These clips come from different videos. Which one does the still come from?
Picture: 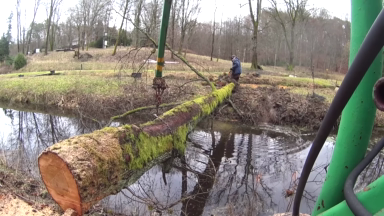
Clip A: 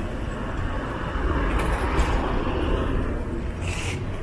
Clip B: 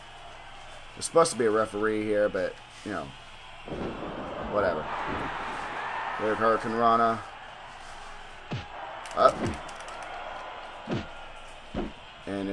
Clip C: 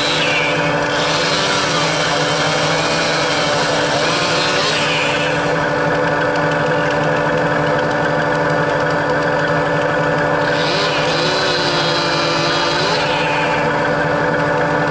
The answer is C